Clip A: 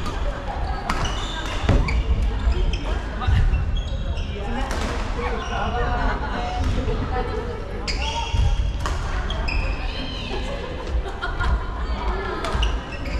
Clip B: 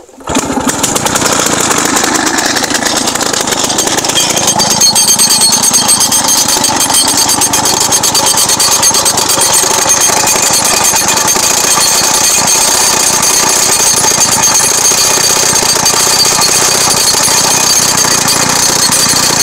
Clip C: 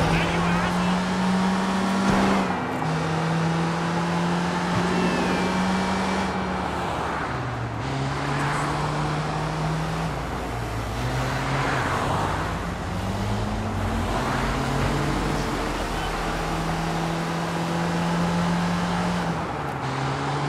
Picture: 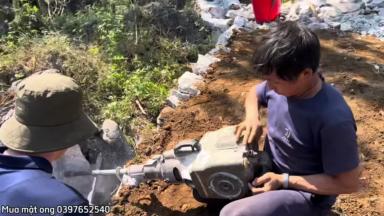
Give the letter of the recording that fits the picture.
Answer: B